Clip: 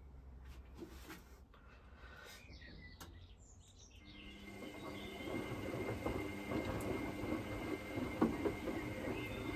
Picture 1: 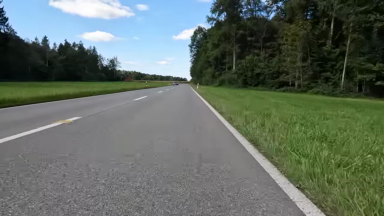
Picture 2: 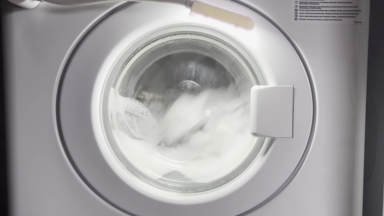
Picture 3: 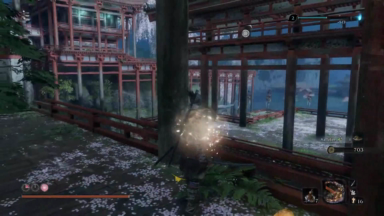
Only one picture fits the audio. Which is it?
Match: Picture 2